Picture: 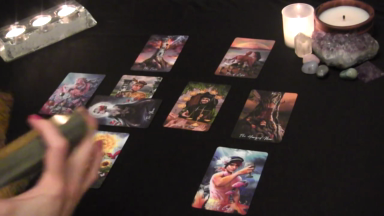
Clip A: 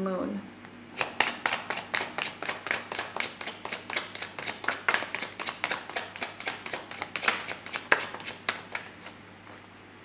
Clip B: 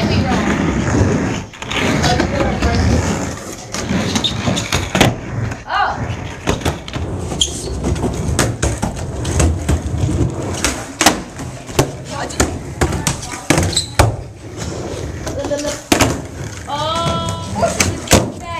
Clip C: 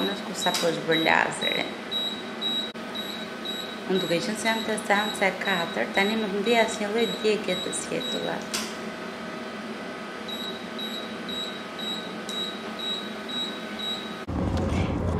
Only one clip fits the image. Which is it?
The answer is A